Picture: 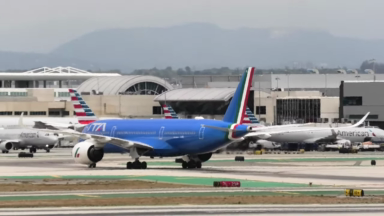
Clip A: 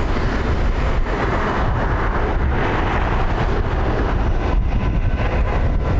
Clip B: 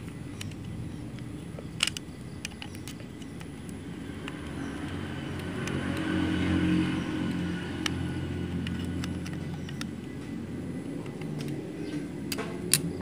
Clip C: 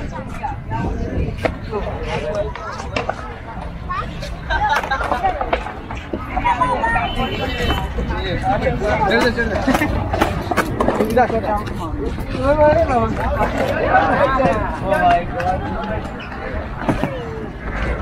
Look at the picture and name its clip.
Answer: A